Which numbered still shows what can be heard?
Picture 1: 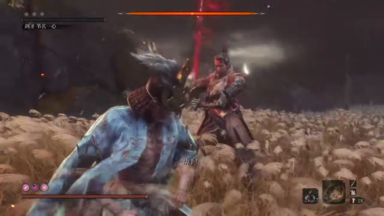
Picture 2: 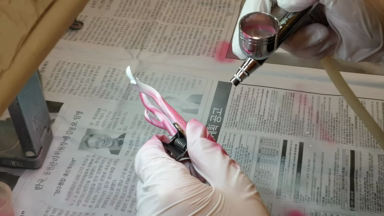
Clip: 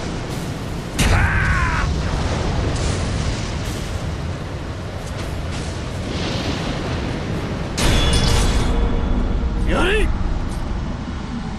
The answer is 1